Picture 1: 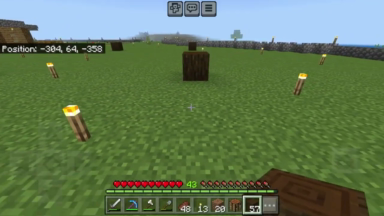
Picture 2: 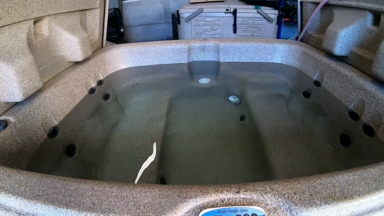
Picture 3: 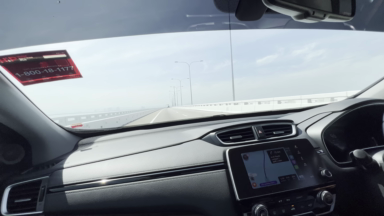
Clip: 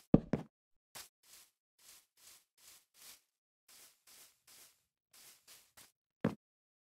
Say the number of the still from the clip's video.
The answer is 1